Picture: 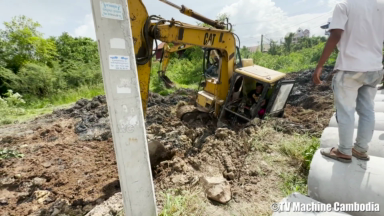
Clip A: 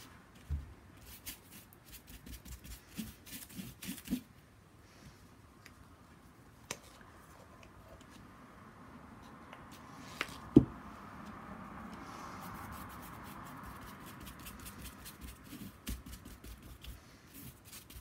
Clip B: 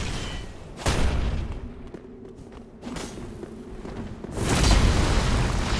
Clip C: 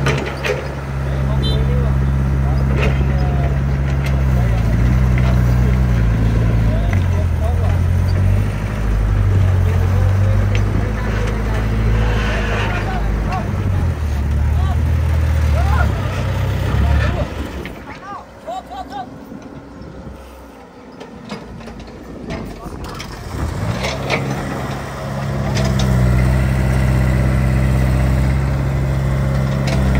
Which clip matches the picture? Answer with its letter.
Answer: C